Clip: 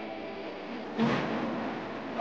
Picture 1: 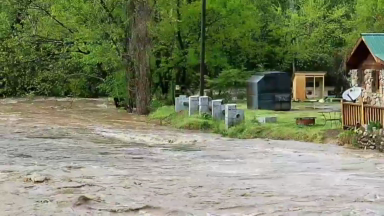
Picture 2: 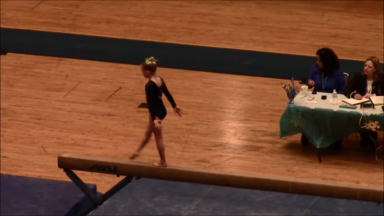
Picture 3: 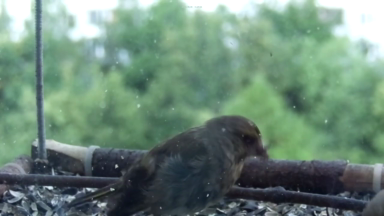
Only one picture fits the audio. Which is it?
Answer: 2